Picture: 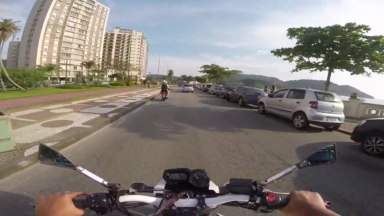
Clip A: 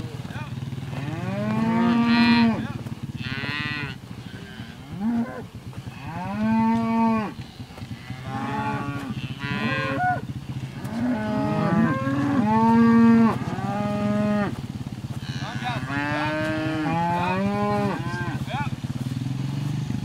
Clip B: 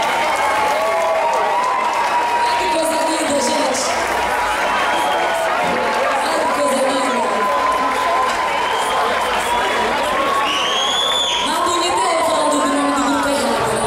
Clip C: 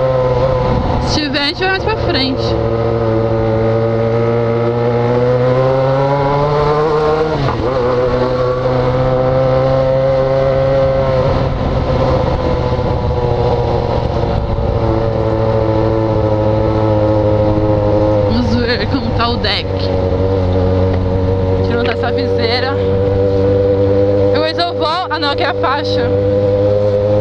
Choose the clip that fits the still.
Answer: C